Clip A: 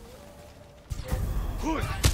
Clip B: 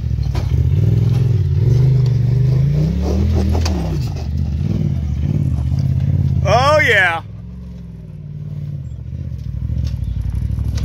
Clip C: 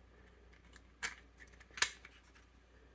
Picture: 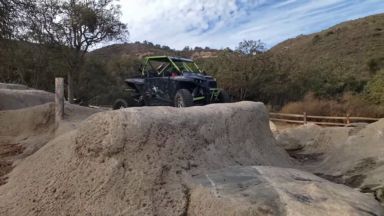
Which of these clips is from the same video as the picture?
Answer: B